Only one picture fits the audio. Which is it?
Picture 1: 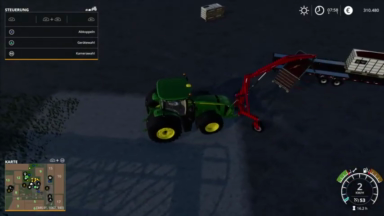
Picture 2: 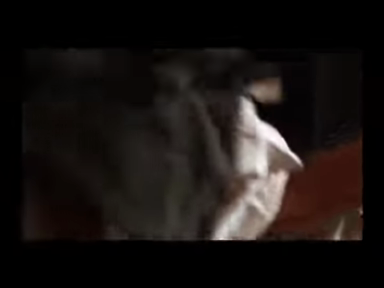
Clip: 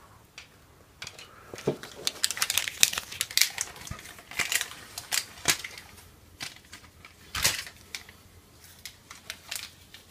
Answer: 2